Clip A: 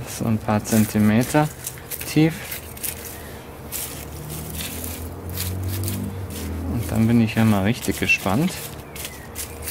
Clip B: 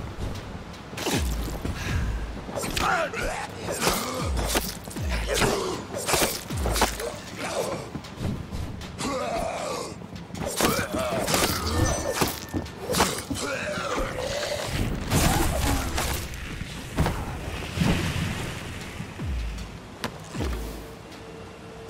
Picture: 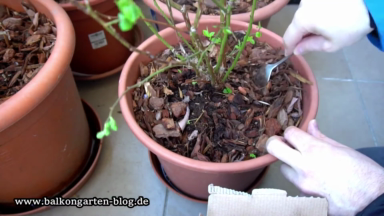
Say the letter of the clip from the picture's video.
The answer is A